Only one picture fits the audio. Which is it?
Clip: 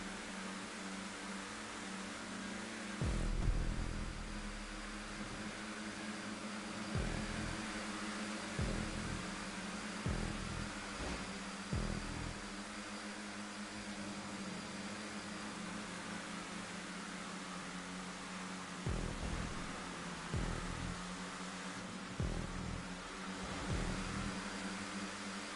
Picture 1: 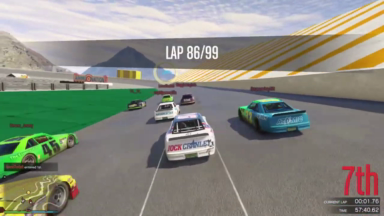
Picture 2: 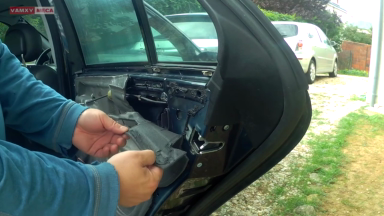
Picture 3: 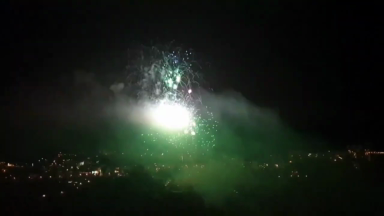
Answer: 1